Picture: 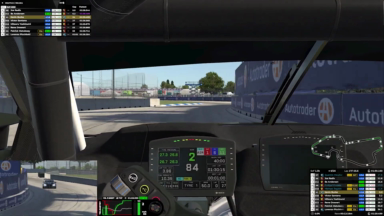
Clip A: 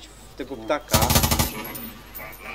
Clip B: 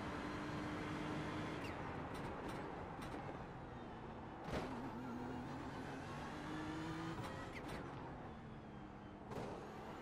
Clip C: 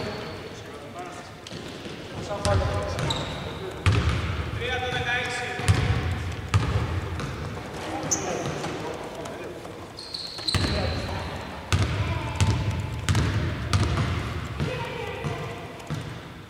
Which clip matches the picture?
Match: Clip B